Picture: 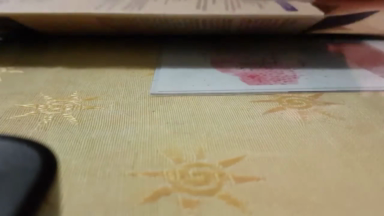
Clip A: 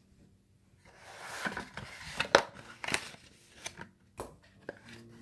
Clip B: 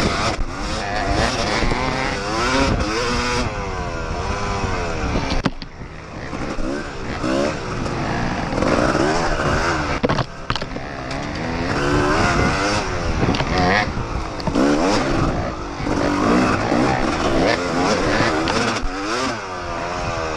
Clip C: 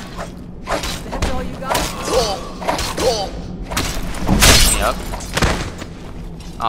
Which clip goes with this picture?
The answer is A